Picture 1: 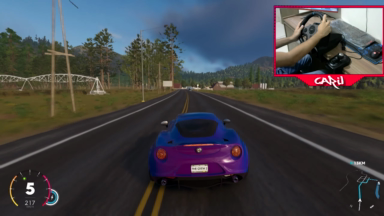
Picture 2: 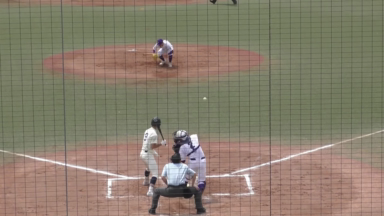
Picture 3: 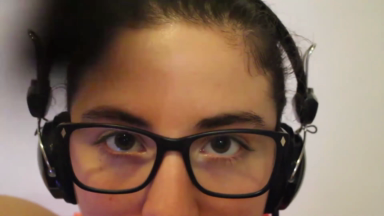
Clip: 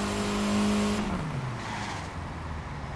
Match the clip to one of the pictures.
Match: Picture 1